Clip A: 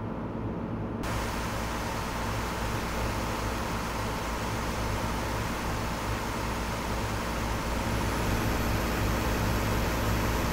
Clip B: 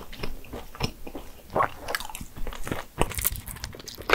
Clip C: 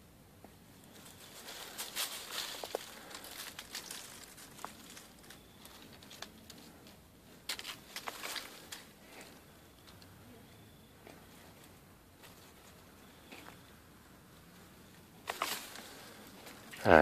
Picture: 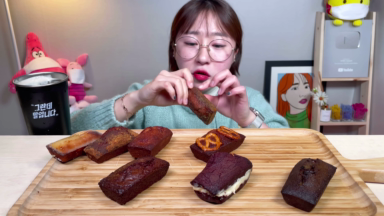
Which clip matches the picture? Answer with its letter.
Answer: B